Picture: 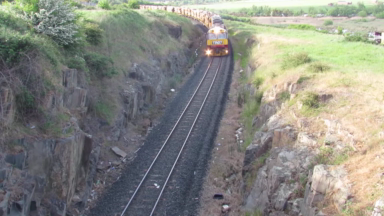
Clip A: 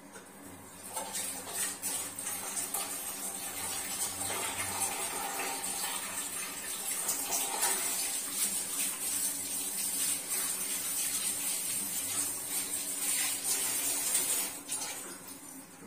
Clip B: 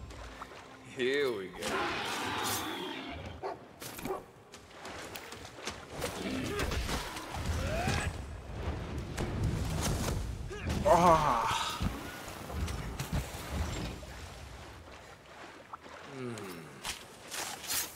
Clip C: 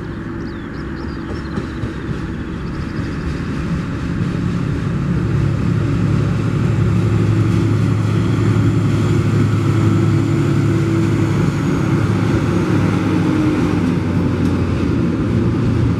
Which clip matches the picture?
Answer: C